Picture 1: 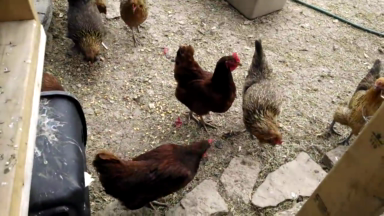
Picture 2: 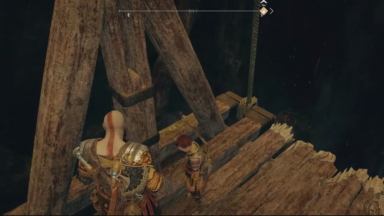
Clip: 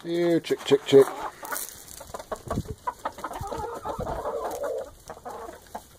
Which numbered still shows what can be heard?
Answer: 1